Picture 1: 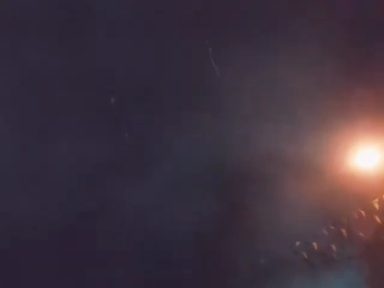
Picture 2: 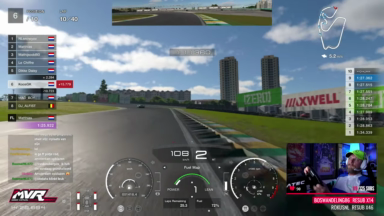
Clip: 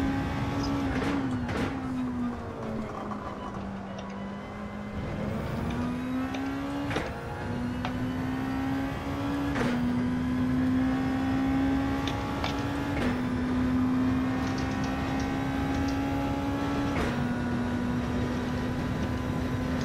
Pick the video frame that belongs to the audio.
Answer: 2